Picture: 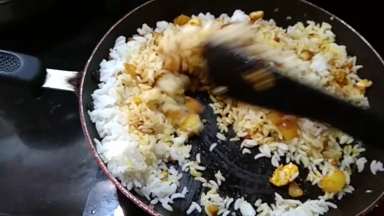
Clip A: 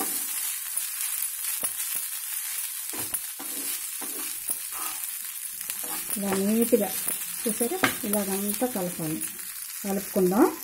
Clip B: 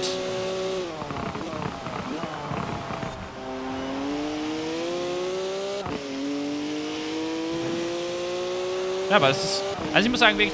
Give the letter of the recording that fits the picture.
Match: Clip A